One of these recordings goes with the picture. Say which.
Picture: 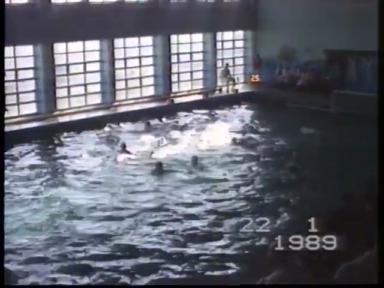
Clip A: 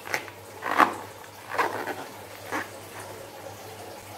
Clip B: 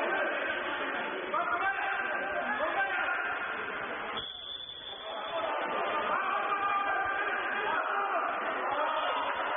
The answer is B